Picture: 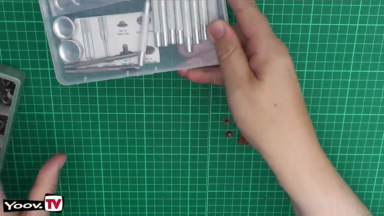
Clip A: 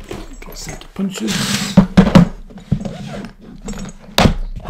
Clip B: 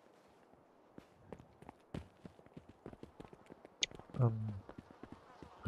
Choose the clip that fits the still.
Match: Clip A